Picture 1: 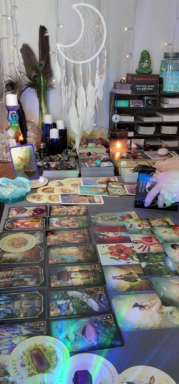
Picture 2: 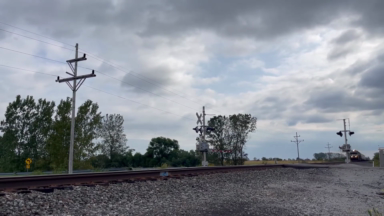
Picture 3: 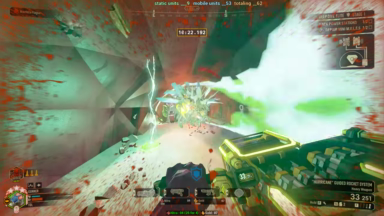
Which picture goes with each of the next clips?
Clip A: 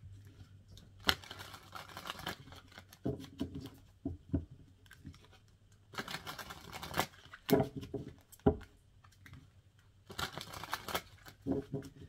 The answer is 1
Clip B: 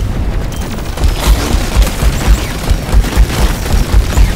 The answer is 3